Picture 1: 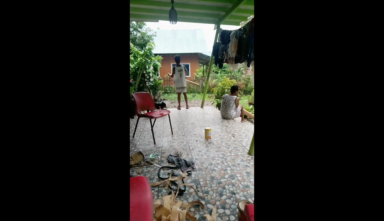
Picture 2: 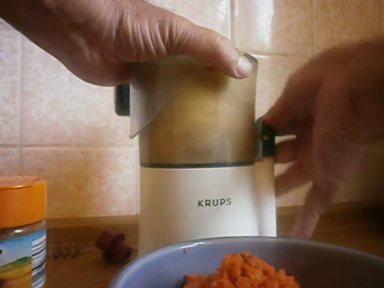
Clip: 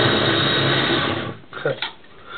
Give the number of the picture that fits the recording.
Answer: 2